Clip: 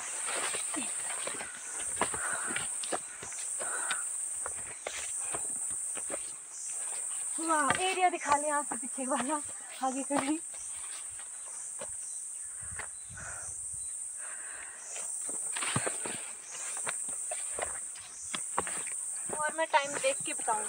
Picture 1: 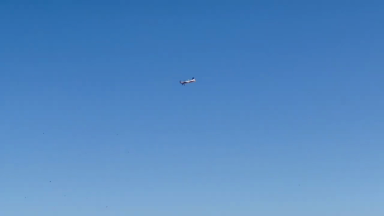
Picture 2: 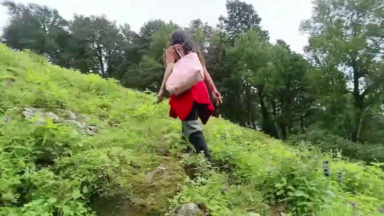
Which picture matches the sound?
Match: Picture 2